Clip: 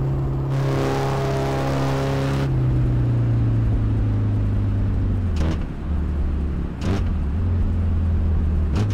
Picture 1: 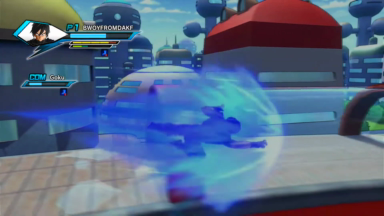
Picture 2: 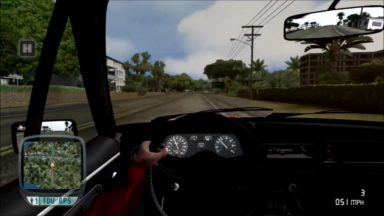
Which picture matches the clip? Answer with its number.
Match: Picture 2